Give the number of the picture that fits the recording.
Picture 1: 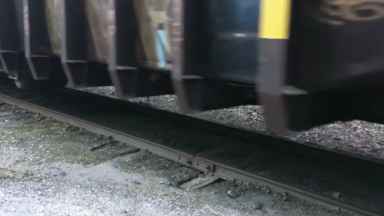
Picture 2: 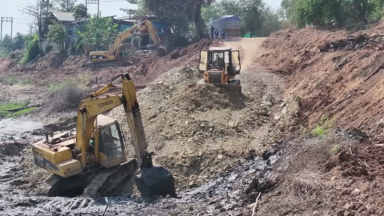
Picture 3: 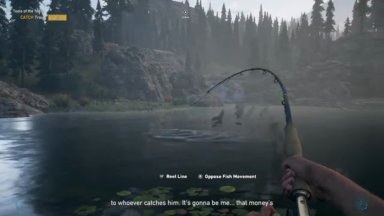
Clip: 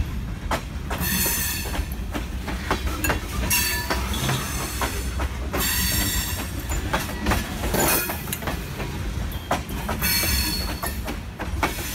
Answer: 1